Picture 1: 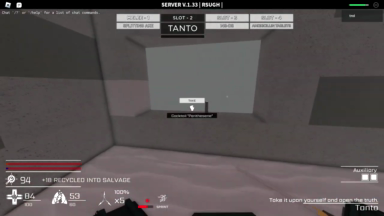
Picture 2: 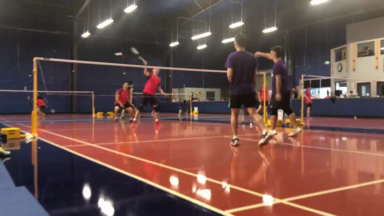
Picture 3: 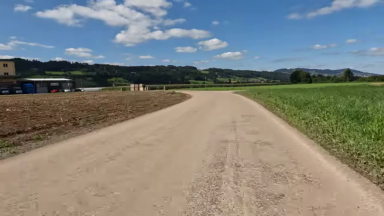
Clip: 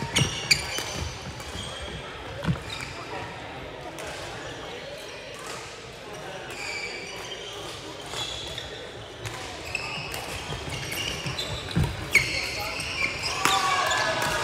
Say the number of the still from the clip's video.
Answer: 2